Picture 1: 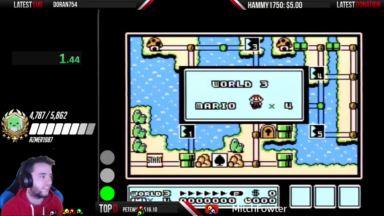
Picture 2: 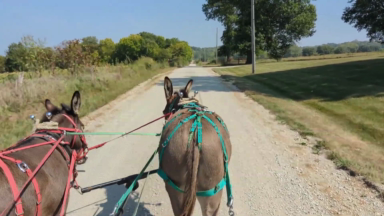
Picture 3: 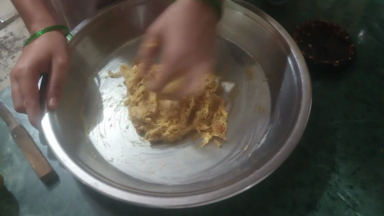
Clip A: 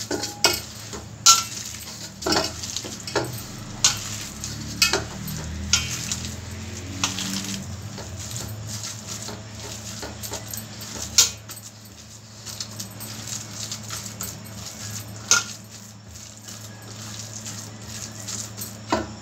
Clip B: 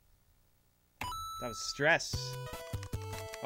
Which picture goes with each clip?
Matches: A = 3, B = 1